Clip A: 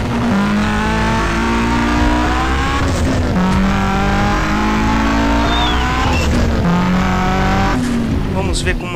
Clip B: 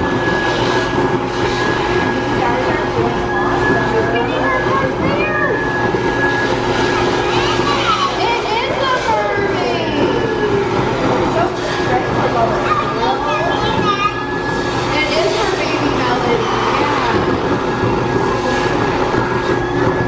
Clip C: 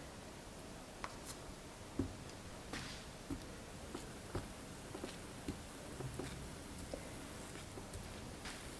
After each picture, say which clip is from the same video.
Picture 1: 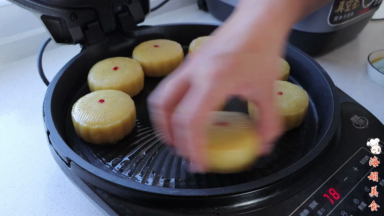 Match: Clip C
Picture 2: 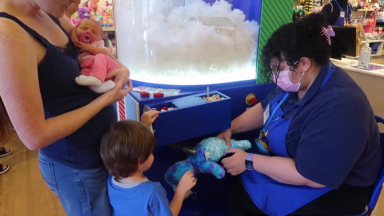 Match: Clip B